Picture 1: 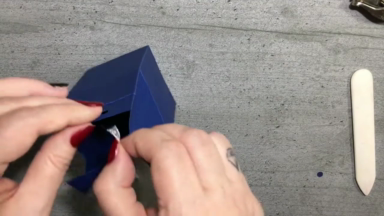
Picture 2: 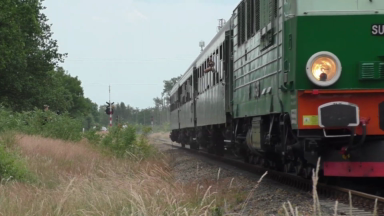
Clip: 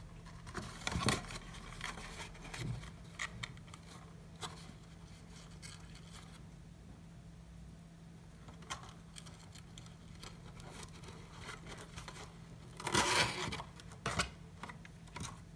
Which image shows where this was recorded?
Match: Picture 1